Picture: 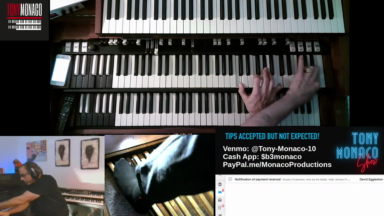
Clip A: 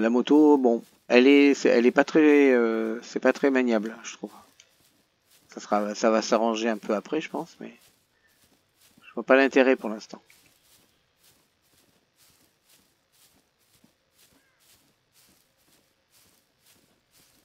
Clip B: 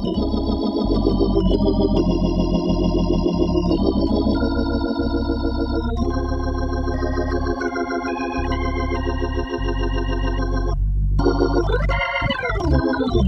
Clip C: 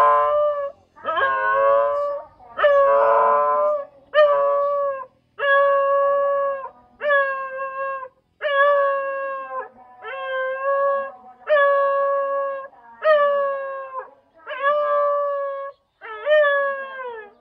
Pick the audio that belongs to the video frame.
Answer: B